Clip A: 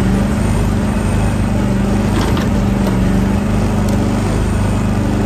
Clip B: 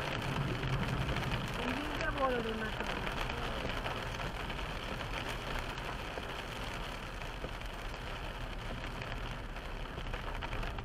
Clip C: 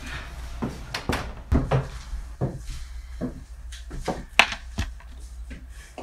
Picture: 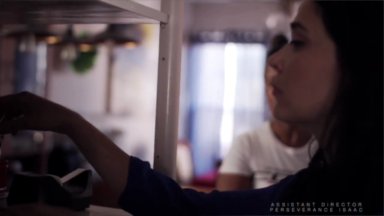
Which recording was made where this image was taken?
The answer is C